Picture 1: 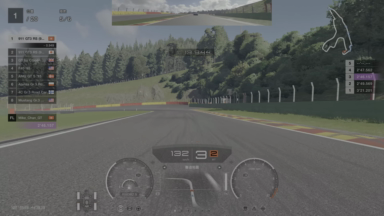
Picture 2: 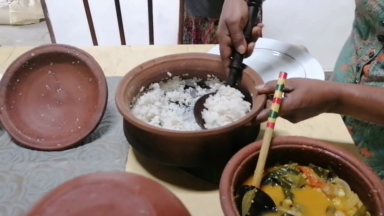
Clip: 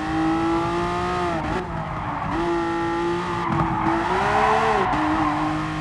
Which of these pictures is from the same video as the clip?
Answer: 1